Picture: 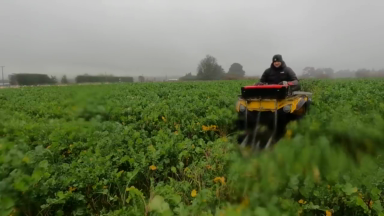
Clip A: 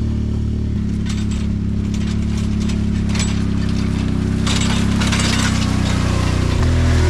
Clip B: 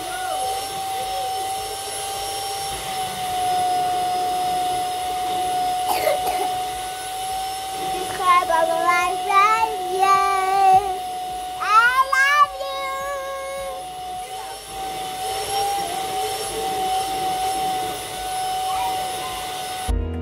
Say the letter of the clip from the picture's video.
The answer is A